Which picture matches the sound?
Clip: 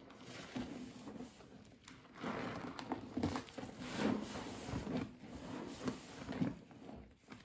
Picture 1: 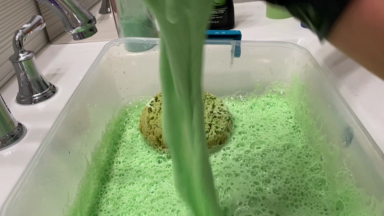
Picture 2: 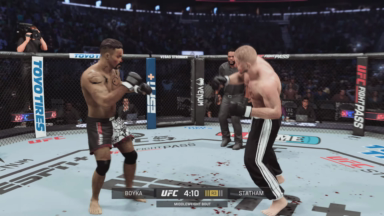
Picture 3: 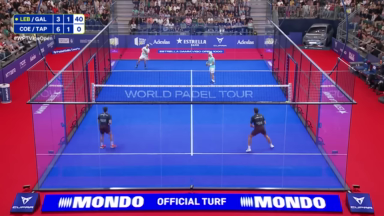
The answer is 1